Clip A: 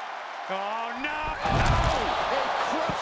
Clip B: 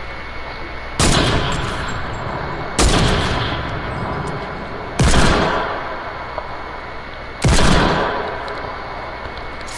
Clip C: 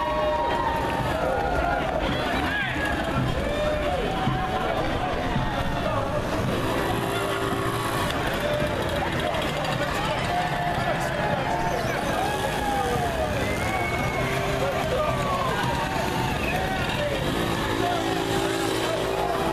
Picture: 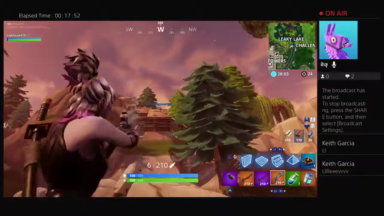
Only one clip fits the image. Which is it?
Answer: B